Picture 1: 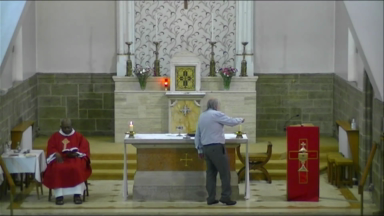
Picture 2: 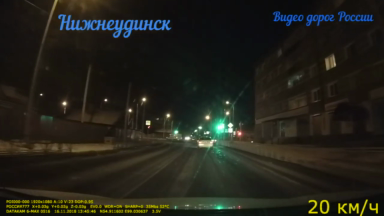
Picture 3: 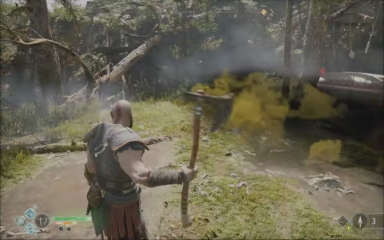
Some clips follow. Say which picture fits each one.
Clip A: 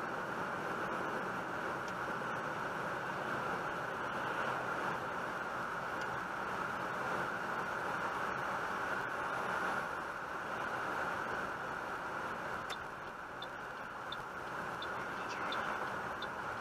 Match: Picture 2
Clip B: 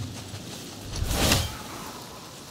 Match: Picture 3